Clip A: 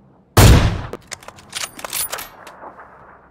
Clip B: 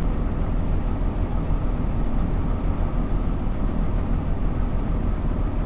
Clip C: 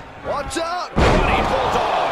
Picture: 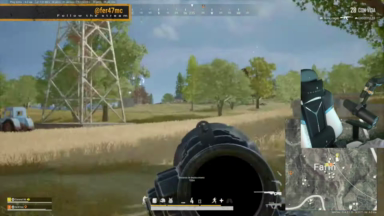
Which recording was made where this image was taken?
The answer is A